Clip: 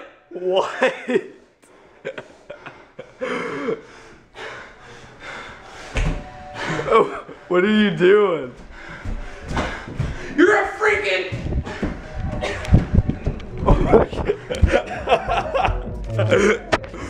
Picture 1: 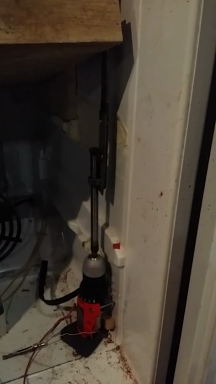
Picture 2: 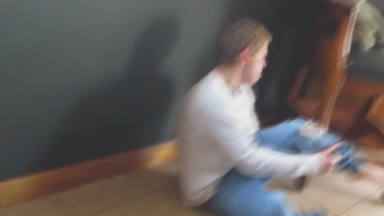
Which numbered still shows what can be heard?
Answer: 2